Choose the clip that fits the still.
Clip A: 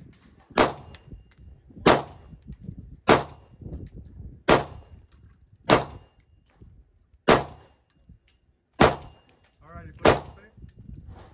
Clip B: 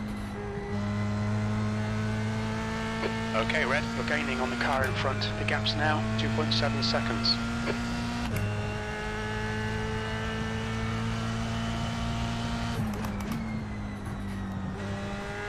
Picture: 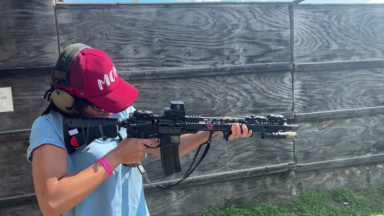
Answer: A